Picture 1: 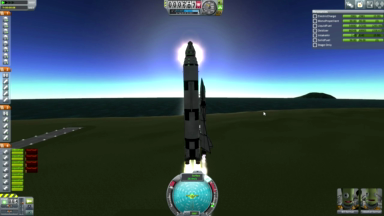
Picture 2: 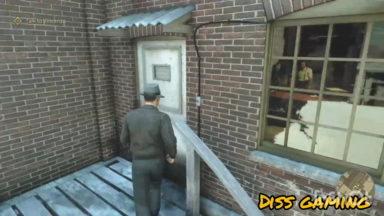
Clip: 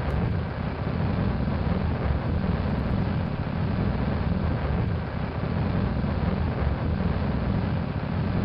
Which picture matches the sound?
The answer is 1